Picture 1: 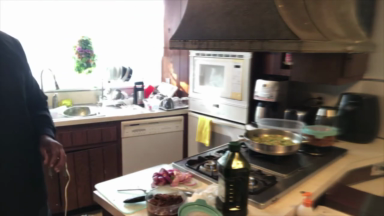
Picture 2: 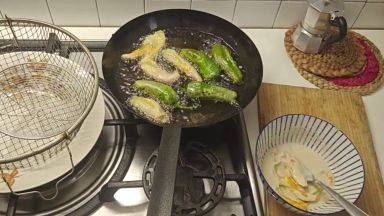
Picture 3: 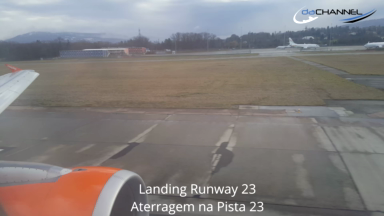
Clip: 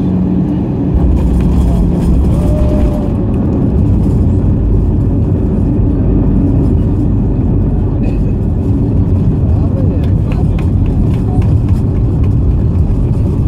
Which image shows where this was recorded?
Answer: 3